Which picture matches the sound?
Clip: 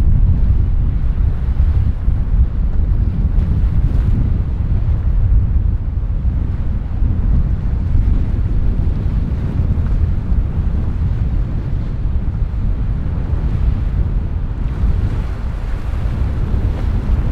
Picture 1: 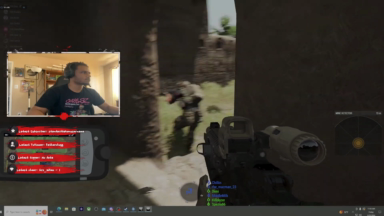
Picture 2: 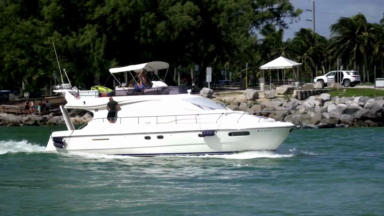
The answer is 2